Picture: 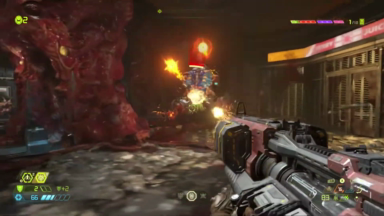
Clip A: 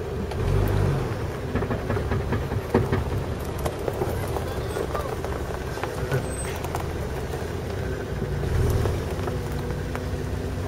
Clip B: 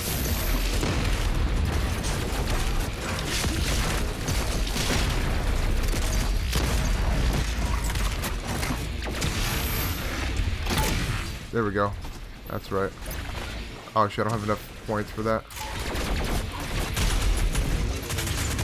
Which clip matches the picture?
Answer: B